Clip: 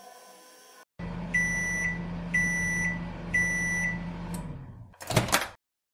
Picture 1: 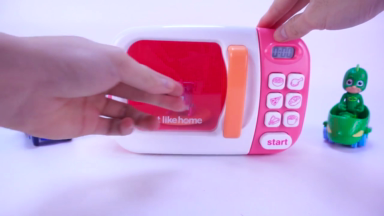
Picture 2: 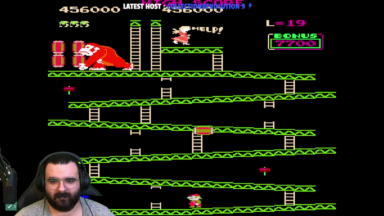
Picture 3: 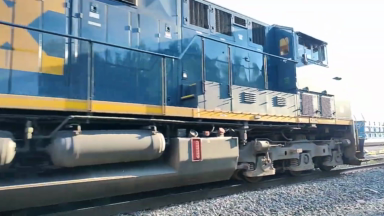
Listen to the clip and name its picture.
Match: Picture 1